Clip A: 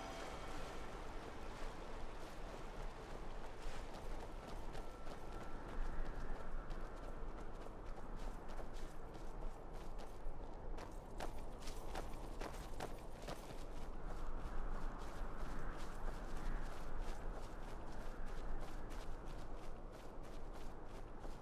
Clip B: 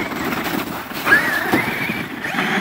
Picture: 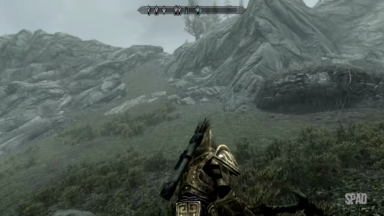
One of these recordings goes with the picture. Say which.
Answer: A